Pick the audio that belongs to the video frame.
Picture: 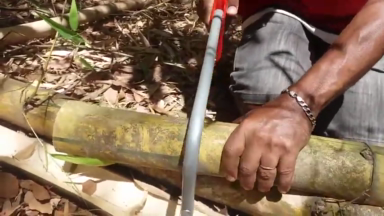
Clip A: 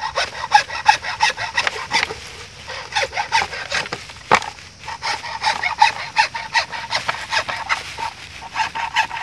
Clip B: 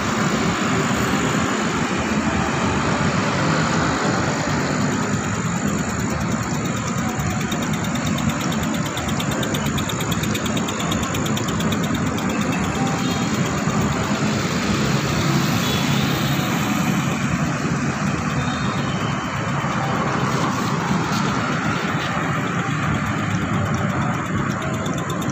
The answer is A